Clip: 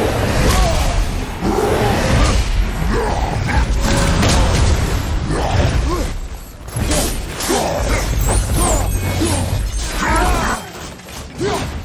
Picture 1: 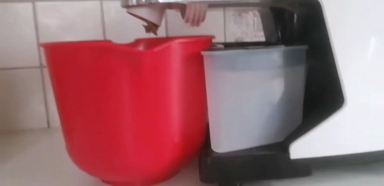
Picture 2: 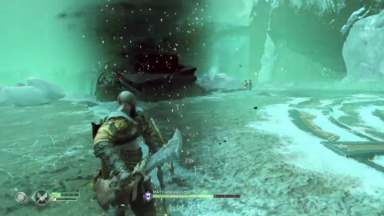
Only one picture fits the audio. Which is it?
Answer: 2